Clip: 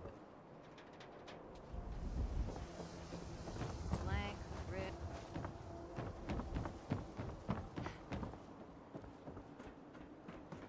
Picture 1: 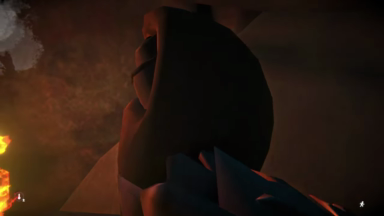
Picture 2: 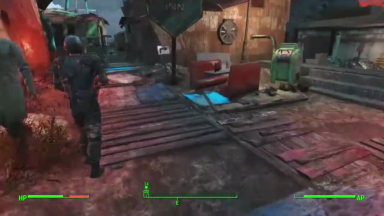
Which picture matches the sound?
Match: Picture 2